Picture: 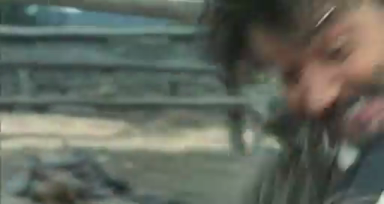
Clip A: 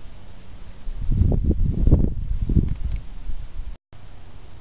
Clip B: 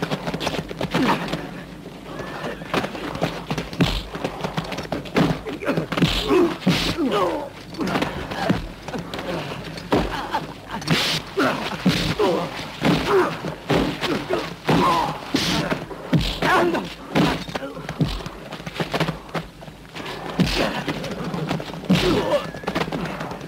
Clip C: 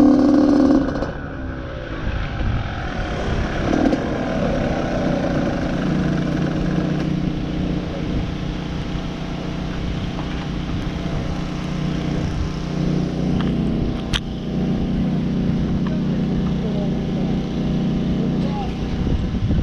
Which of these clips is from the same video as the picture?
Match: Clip B